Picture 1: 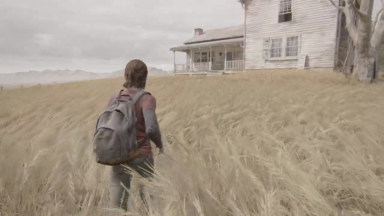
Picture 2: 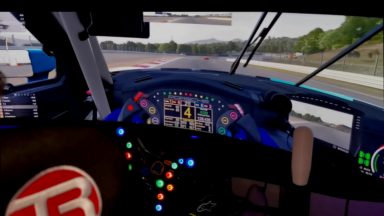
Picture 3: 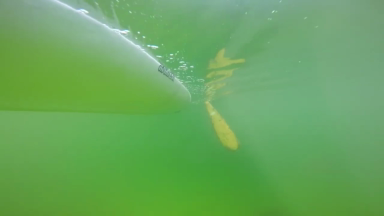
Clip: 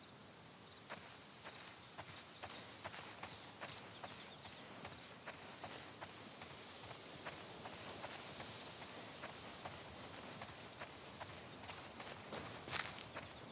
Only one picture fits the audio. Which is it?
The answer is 1